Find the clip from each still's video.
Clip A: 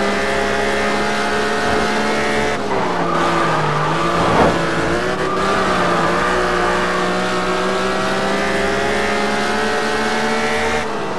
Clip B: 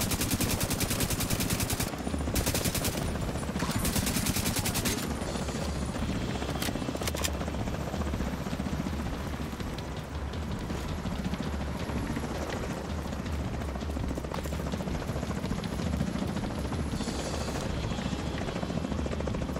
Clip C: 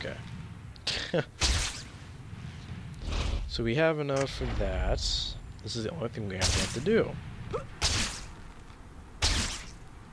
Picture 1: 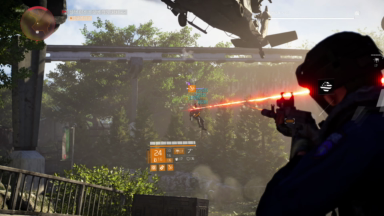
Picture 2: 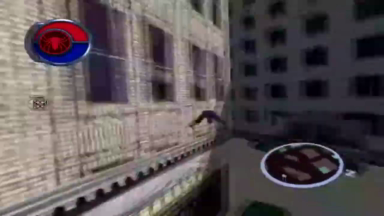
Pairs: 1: B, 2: C